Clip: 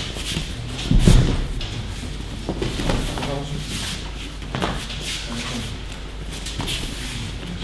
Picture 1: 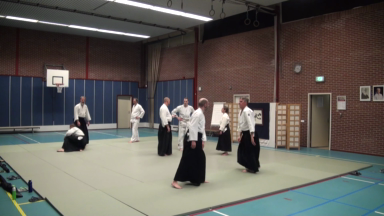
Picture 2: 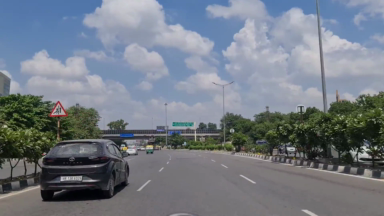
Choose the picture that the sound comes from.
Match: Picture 1